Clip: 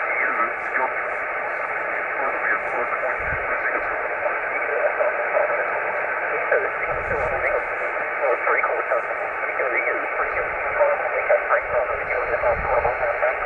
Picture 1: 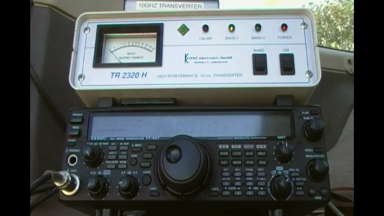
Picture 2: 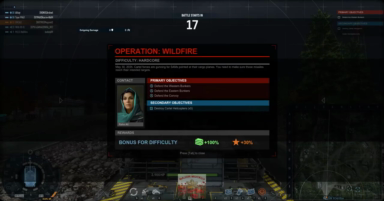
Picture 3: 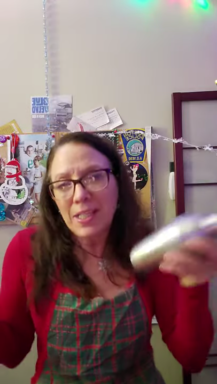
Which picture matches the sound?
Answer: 1